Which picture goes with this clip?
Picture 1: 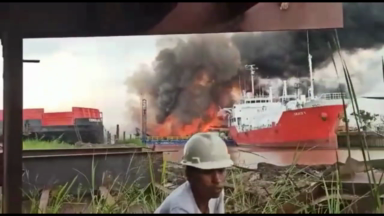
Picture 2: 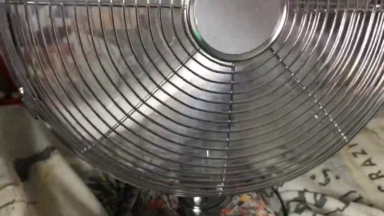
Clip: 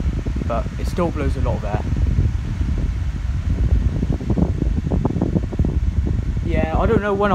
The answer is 2